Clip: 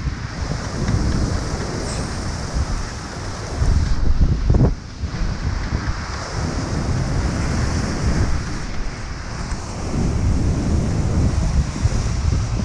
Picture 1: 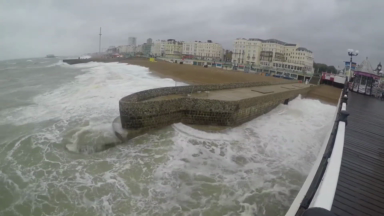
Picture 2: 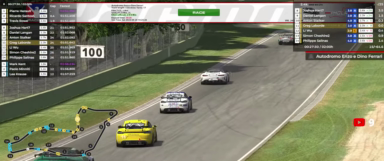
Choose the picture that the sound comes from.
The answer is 1